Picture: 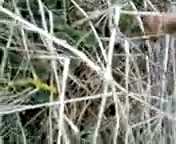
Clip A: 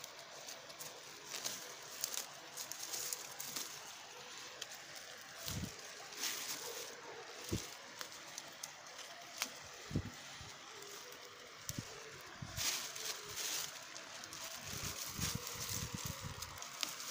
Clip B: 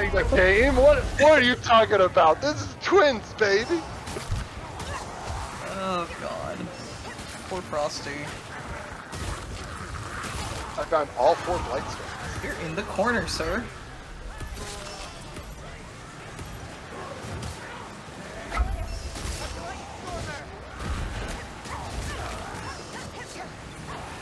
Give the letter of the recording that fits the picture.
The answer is A